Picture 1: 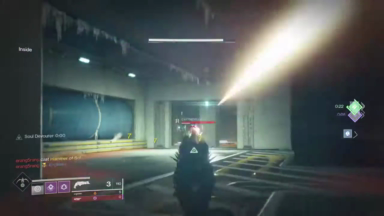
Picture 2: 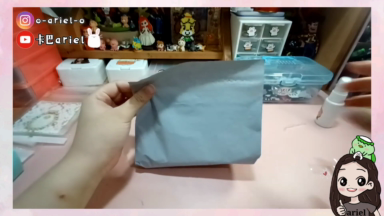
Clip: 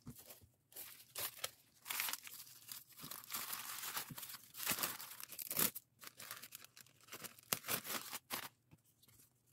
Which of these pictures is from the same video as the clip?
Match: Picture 2